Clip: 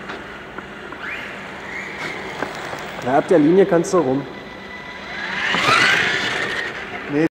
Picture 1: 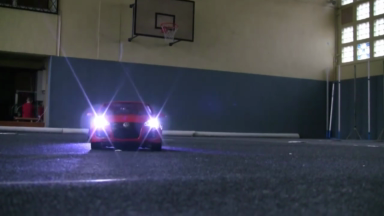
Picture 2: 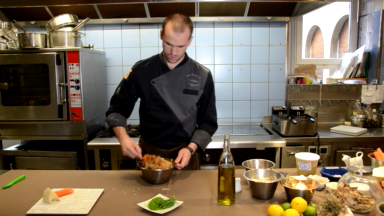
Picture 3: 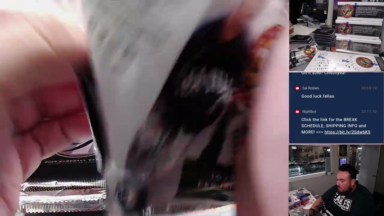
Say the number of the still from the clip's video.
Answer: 1